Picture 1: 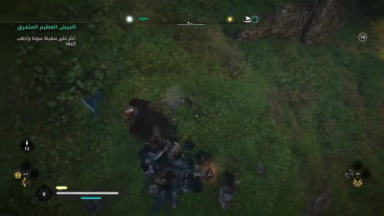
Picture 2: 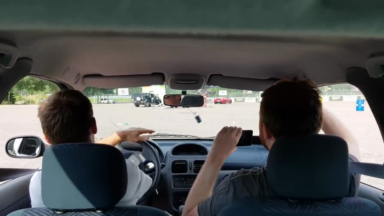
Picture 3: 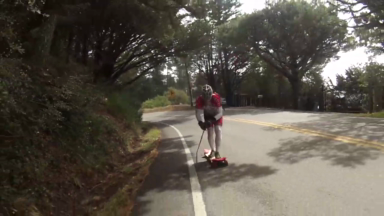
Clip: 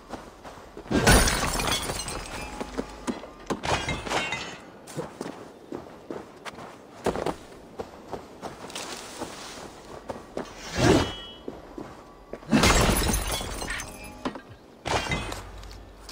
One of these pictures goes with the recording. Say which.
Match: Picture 1